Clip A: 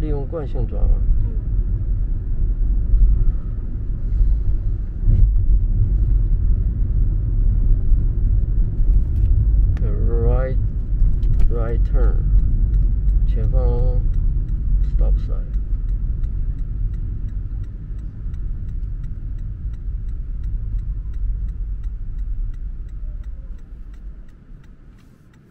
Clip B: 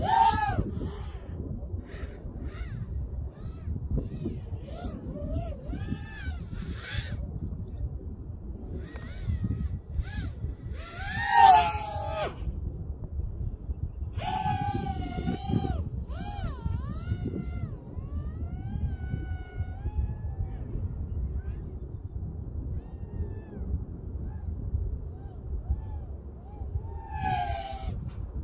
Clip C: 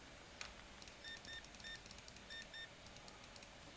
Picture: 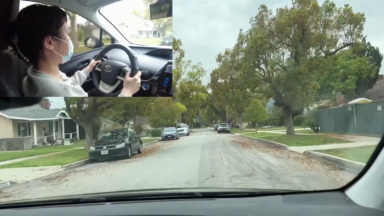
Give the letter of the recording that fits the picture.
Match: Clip A